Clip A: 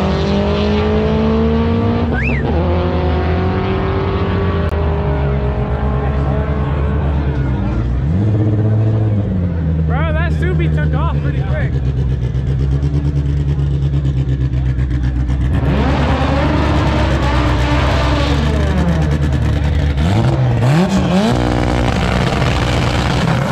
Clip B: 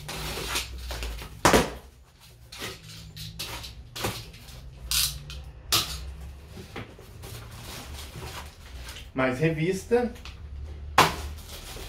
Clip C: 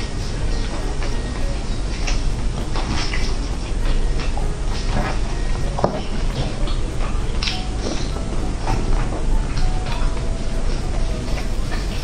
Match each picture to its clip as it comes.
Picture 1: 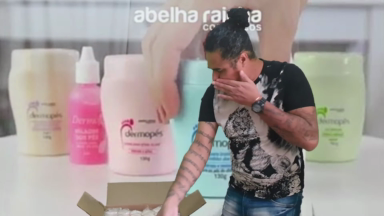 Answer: B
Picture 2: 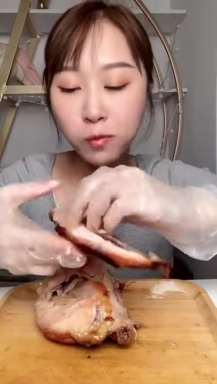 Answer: C